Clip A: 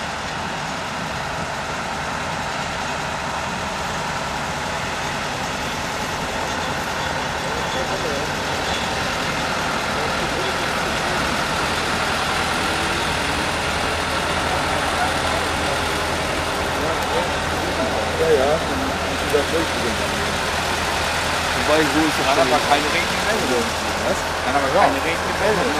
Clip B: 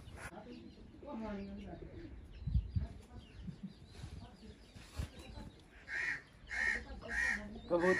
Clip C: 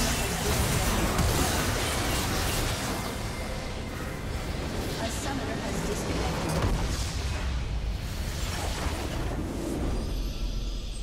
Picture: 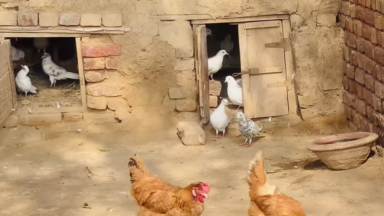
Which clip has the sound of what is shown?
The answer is B